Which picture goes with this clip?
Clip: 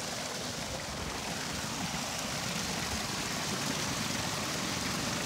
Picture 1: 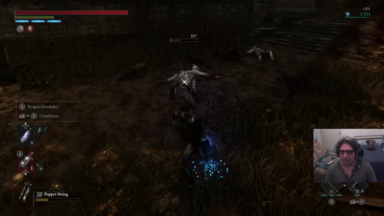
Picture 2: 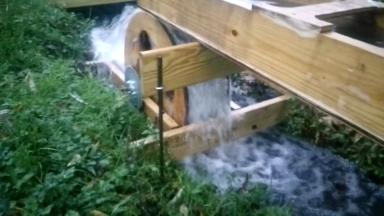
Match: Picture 2